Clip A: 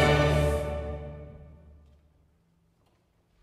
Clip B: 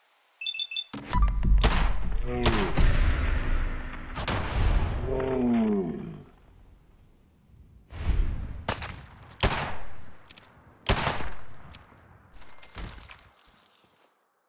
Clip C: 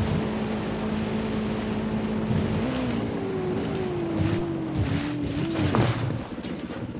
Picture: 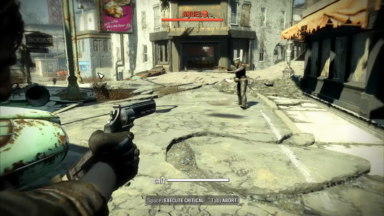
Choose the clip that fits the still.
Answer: B